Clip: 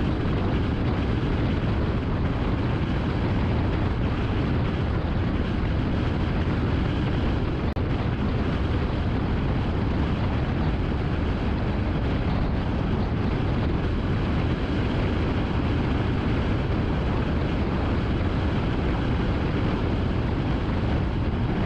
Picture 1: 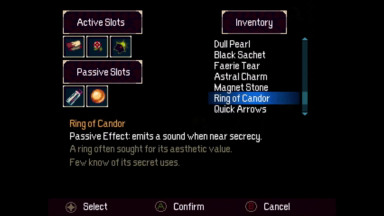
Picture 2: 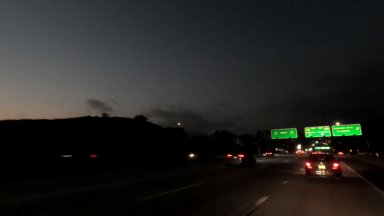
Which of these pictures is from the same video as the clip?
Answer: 2